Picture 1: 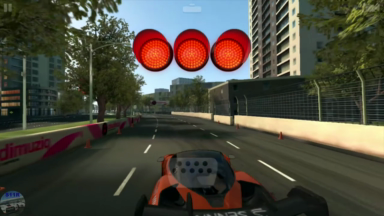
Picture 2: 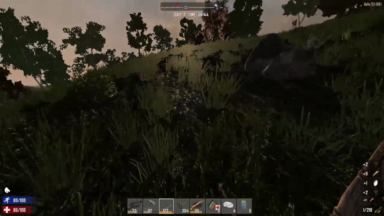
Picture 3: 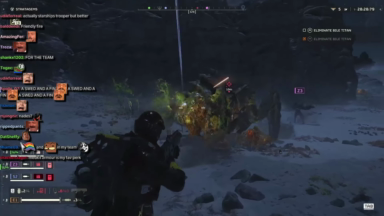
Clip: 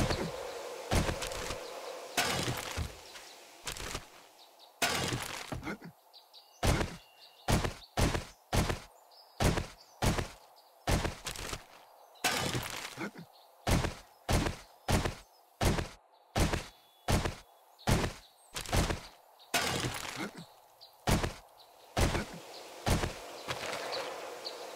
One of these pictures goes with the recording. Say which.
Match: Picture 2